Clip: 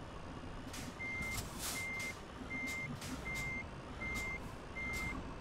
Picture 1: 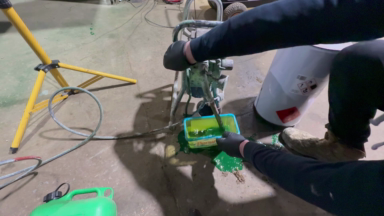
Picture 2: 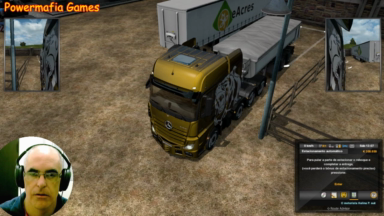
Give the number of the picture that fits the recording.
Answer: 2